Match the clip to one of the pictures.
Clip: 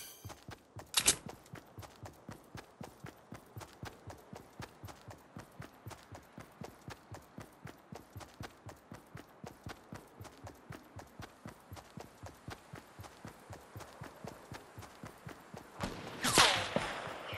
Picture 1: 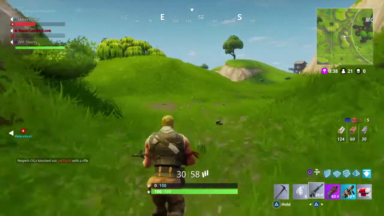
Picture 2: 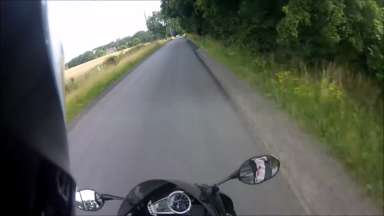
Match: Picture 1